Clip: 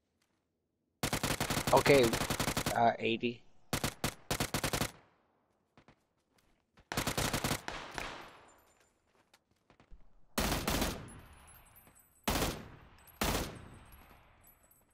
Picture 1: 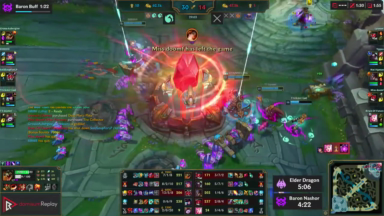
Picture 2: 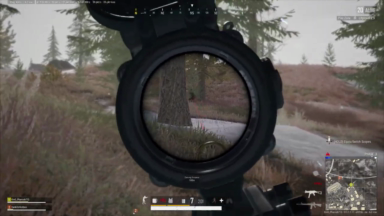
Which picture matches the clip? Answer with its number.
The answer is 2